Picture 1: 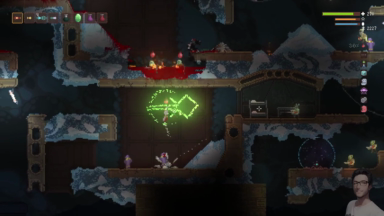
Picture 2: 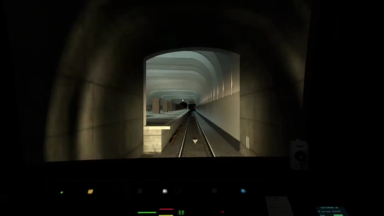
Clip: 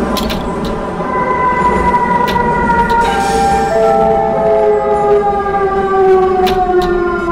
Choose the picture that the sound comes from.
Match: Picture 2